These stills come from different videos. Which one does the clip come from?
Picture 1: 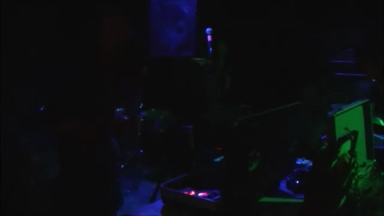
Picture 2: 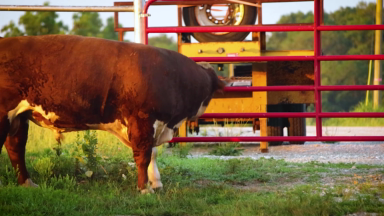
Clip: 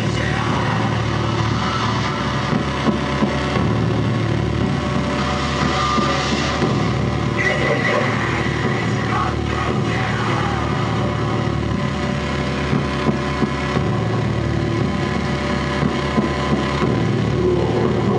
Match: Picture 1